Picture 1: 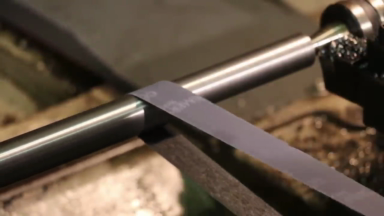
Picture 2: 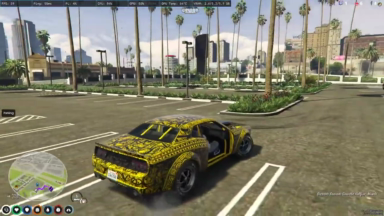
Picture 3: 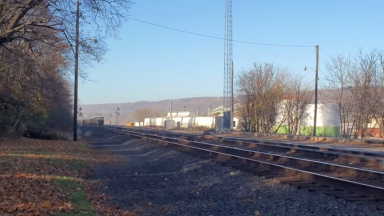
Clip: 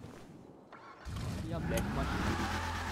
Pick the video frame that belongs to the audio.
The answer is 2